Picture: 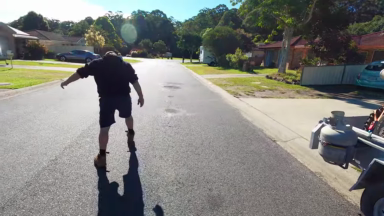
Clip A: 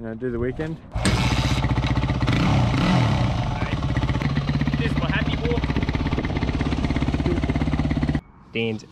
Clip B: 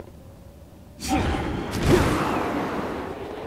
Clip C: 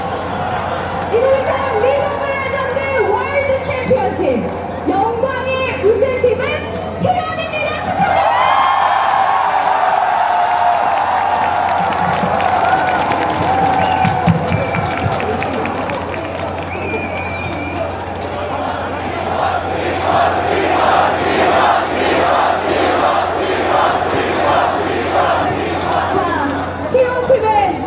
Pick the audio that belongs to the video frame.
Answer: A